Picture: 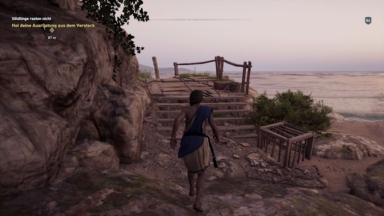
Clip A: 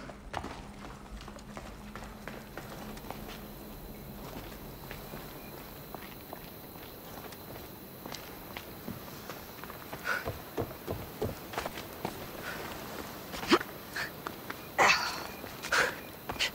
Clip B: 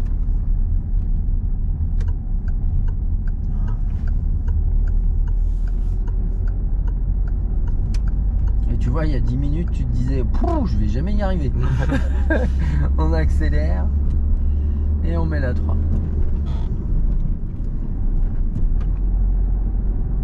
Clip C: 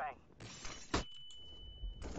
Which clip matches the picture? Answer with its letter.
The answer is A